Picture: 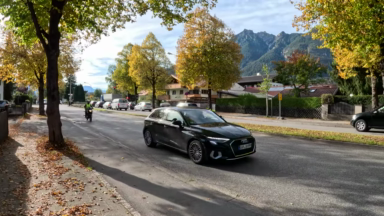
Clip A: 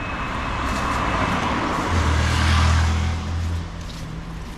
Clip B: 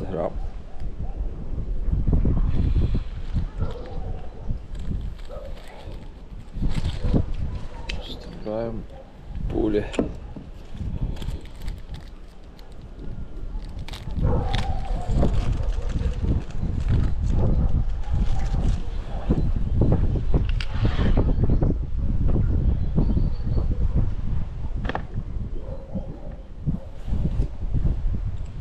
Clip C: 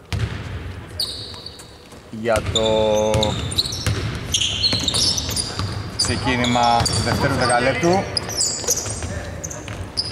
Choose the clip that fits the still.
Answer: A